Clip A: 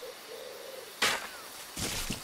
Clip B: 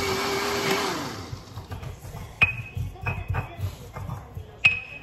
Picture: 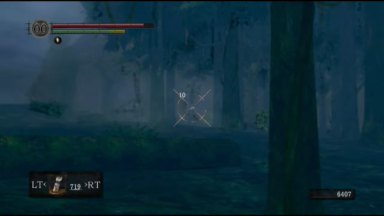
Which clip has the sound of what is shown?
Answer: A